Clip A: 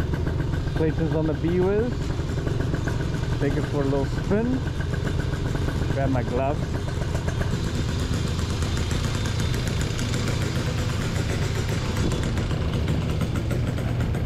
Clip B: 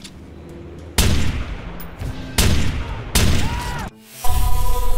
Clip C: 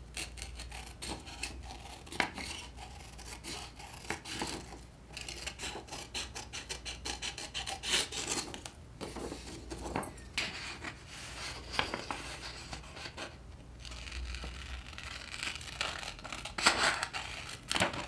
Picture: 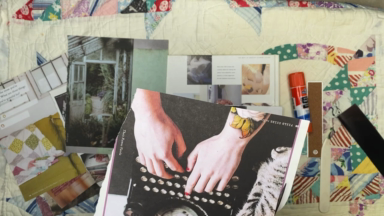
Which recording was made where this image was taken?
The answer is C